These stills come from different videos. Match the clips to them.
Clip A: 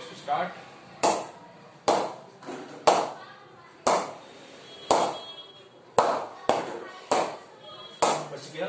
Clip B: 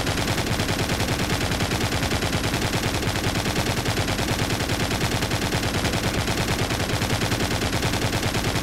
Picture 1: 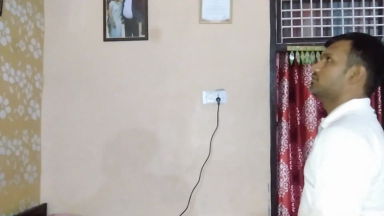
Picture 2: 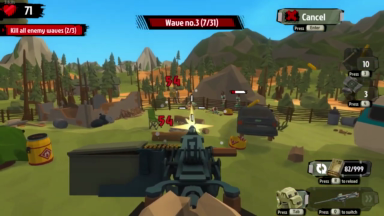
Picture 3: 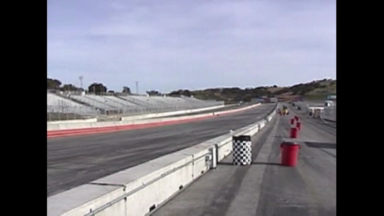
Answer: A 1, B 2